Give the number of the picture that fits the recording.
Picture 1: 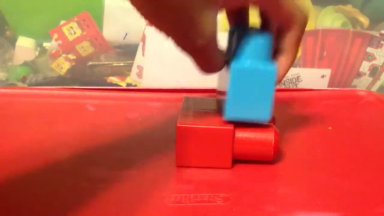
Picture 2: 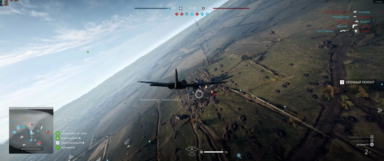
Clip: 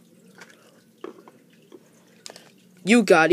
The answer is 1